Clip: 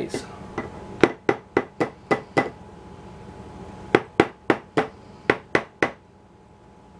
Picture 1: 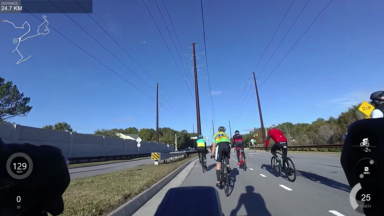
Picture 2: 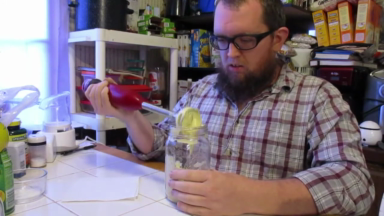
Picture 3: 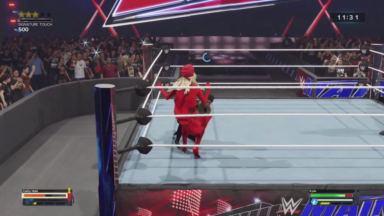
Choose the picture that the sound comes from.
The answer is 2